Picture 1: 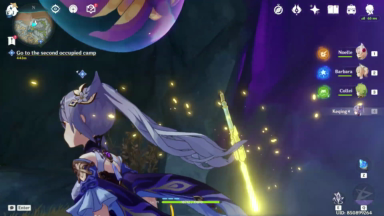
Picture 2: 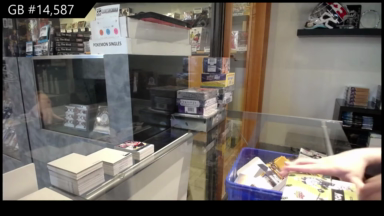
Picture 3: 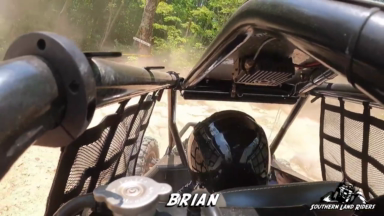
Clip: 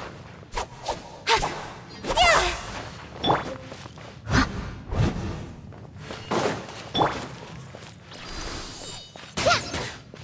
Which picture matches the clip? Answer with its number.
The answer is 1